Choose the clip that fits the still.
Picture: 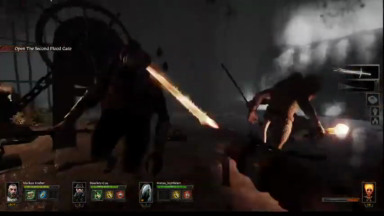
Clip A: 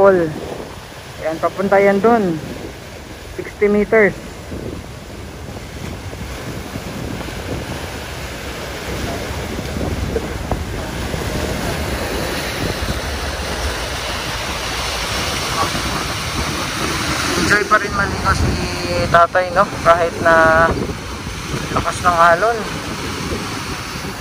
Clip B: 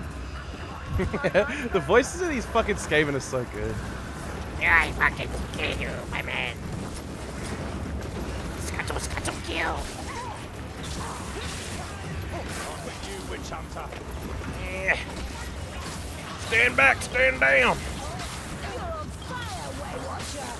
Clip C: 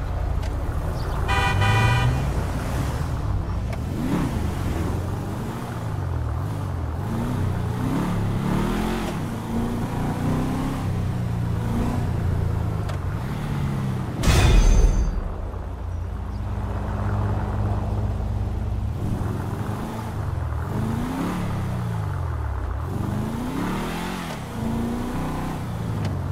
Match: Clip B